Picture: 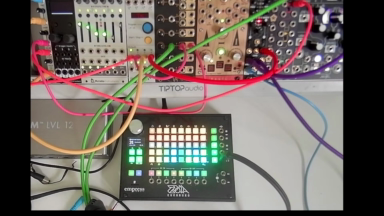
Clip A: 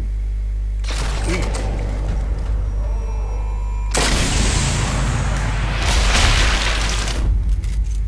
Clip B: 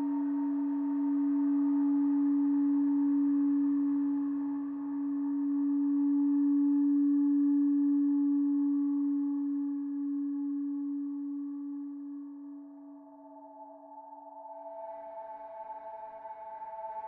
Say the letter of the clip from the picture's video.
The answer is B